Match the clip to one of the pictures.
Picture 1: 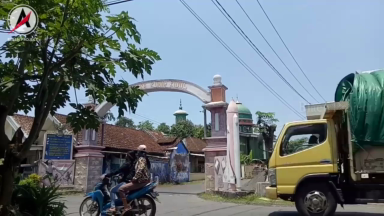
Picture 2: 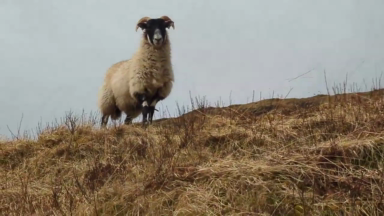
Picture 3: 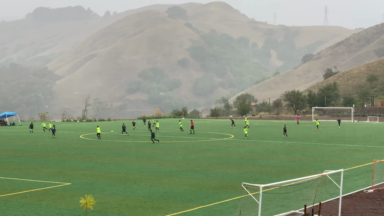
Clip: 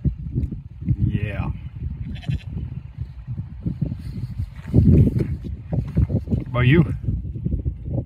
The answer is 2